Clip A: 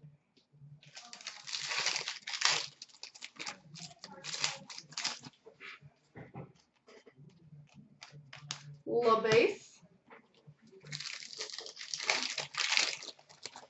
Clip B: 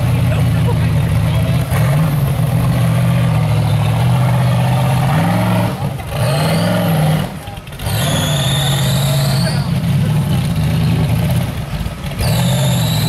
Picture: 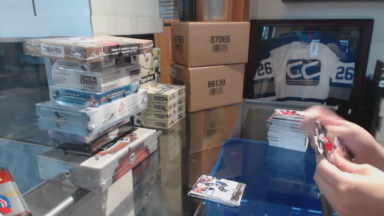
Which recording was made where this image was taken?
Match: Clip A